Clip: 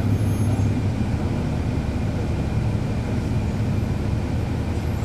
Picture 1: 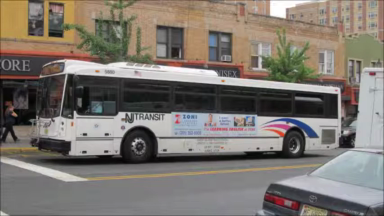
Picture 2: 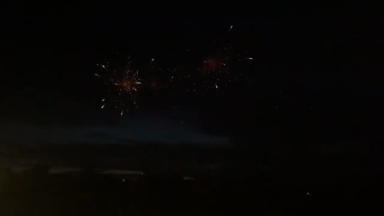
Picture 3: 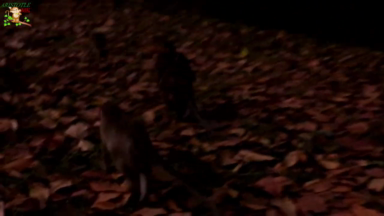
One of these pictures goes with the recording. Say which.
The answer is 1